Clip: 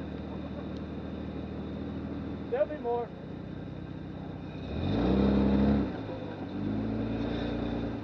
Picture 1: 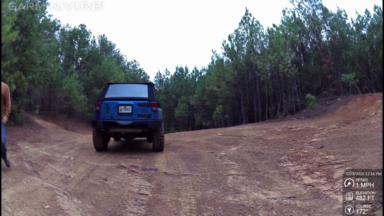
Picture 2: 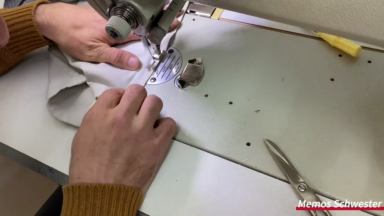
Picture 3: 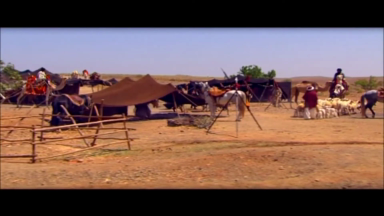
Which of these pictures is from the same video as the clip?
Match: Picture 1